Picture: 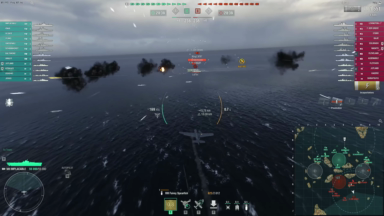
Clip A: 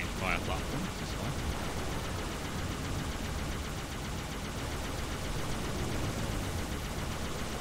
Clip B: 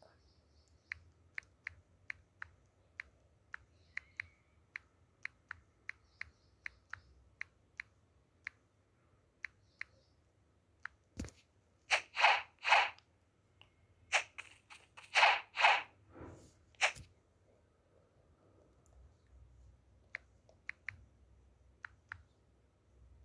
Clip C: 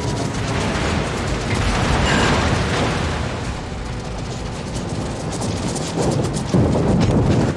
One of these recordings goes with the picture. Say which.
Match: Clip C